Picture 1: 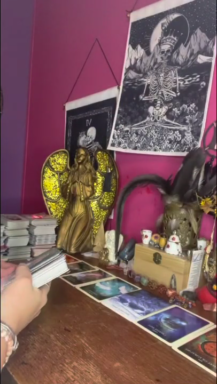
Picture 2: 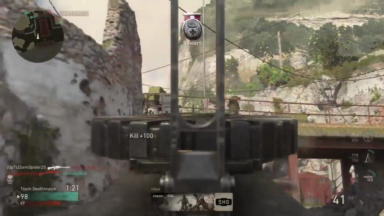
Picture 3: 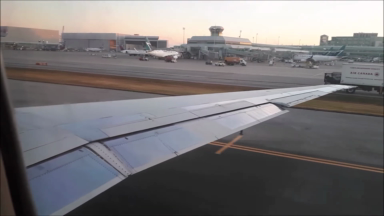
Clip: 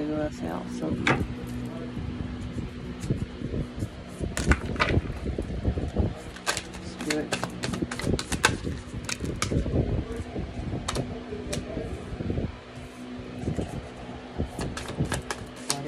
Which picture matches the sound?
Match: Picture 1